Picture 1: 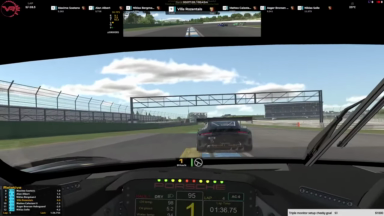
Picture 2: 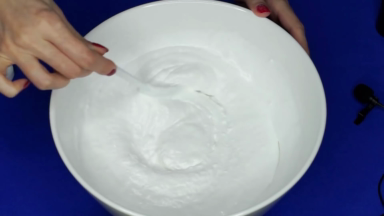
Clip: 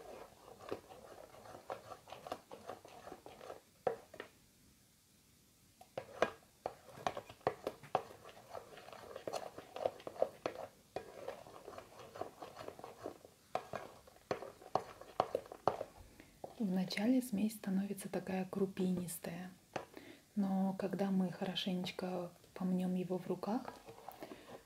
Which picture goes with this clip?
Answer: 2